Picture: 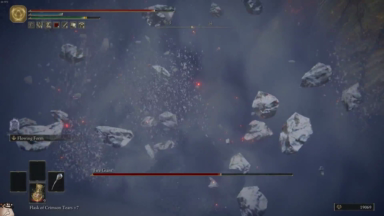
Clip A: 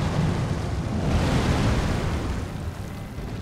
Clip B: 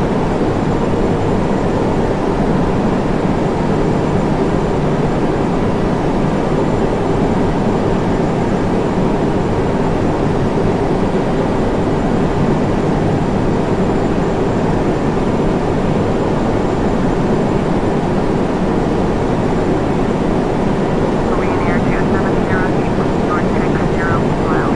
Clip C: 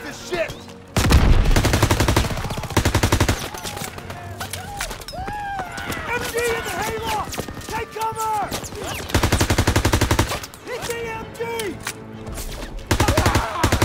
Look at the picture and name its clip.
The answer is A